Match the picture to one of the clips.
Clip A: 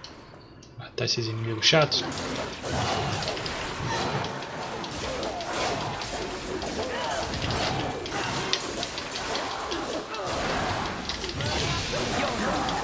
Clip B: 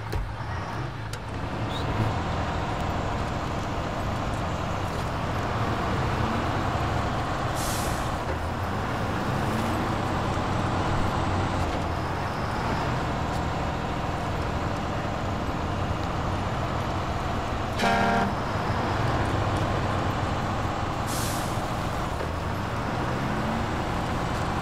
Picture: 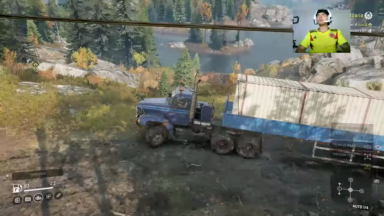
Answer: B